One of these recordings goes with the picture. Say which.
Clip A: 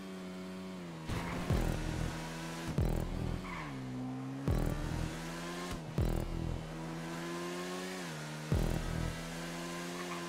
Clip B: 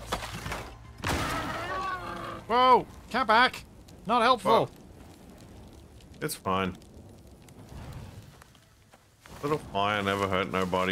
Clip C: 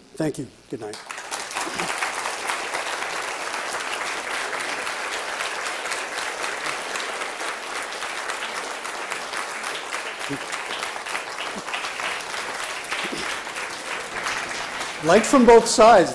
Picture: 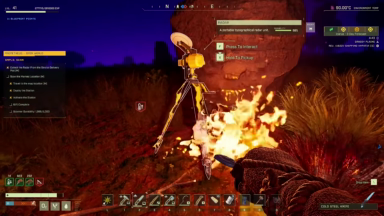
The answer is B